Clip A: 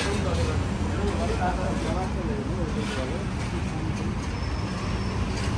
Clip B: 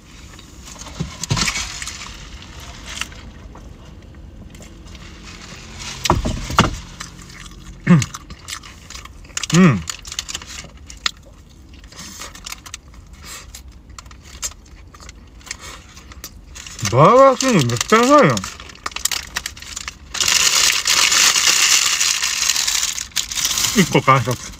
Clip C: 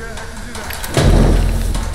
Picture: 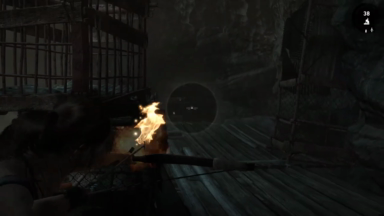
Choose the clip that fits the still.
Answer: C